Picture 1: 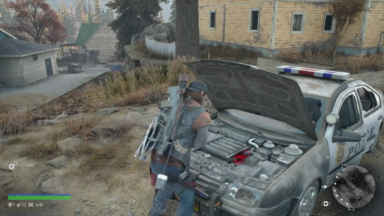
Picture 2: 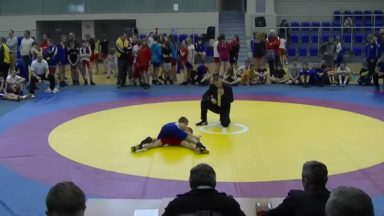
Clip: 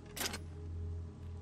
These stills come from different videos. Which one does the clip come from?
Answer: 1